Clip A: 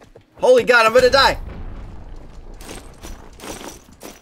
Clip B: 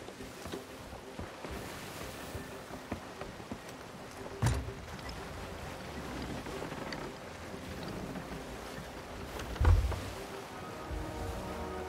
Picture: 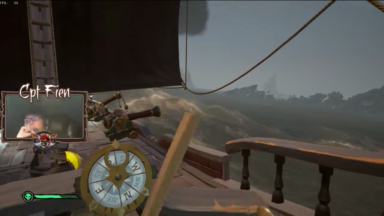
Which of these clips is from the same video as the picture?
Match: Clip B